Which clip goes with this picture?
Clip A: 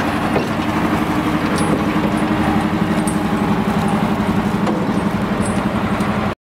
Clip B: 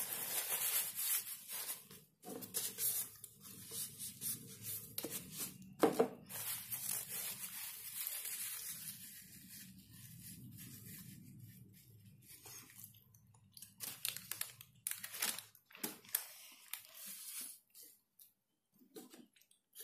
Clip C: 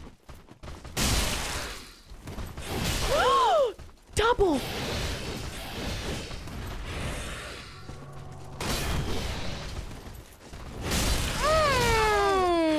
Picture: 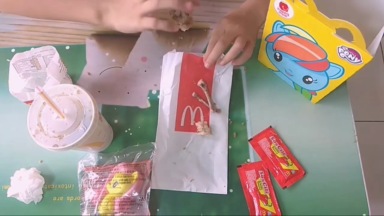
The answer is B